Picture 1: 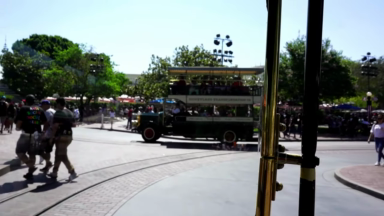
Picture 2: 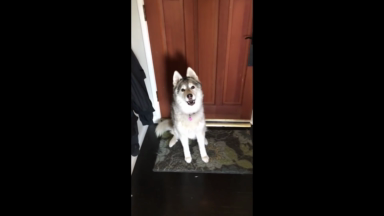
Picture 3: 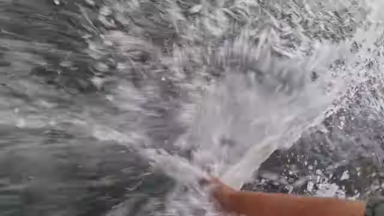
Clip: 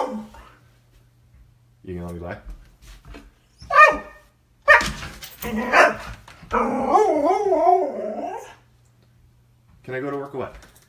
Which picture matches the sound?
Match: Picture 2